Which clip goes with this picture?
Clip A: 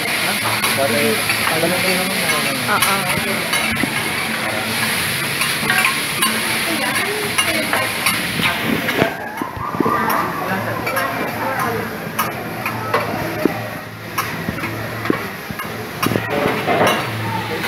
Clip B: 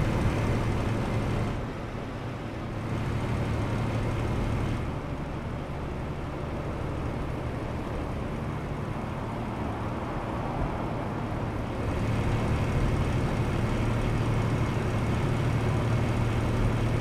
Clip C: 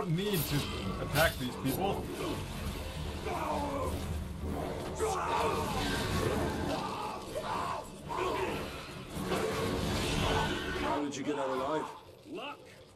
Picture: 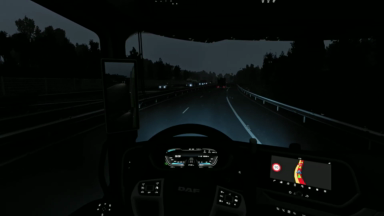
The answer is B